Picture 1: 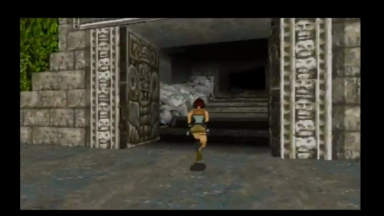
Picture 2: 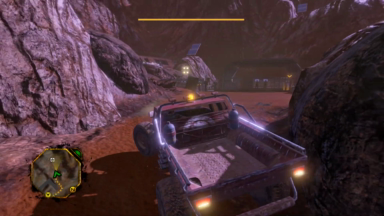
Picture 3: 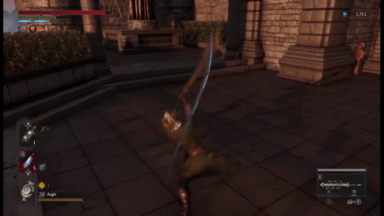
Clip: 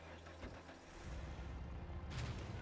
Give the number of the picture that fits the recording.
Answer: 2